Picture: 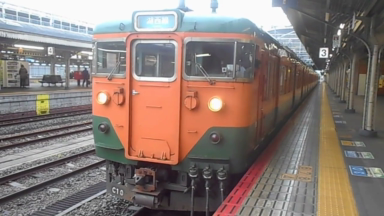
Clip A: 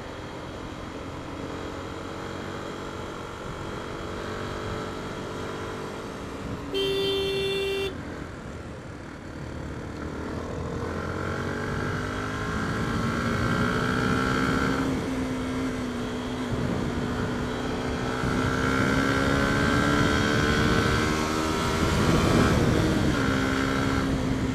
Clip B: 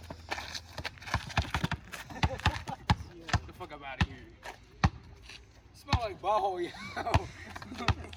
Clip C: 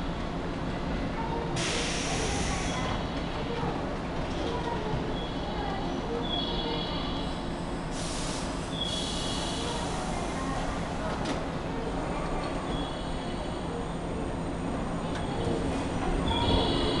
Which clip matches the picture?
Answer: C